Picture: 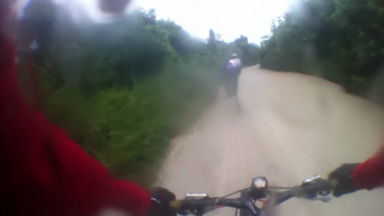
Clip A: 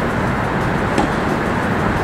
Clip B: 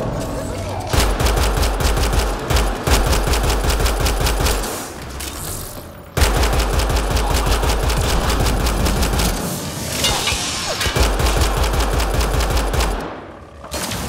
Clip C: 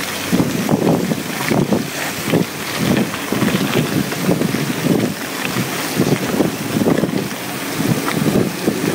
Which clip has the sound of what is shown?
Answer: C